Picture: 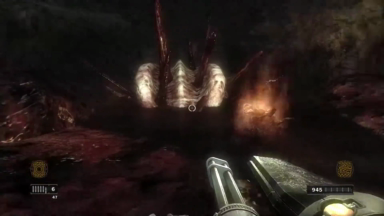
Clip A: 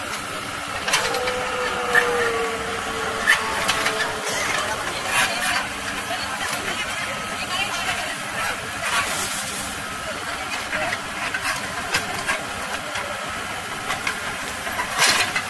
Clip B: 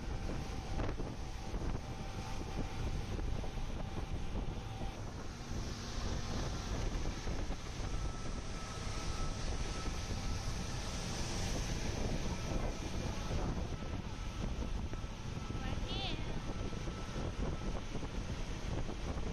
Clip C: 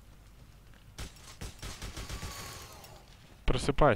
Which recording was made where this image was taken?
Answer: C